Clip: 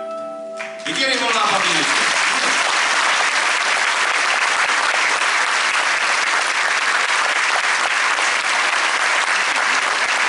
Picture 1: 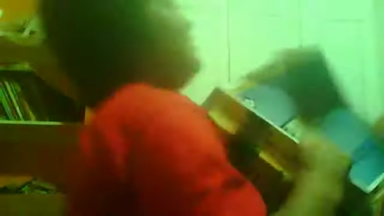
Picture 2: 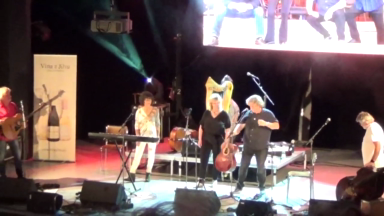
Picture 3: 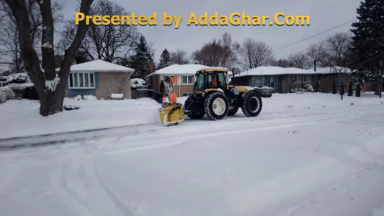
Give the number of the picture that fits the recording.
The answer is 2